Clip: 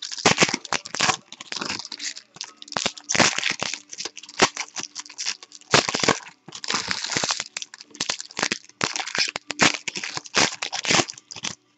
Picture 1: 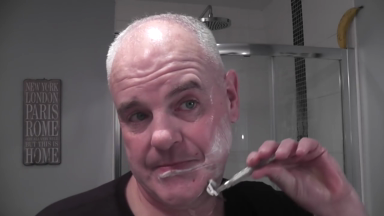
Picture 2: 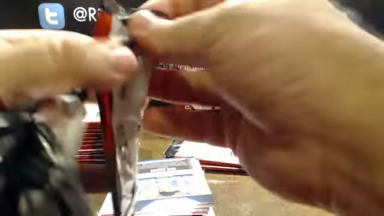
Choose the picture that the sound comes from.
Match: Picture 2